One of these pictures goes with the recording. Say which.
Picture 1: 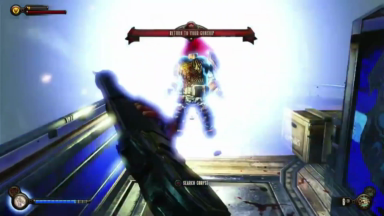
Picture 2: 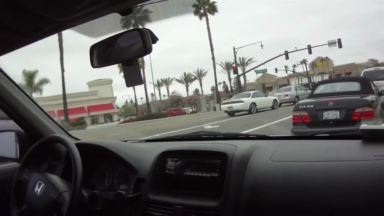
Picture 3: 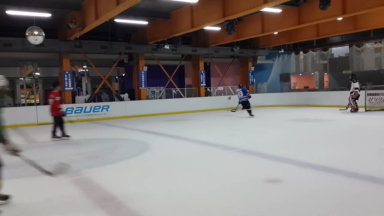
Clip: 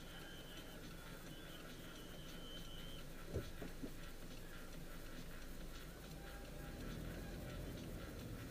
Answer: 2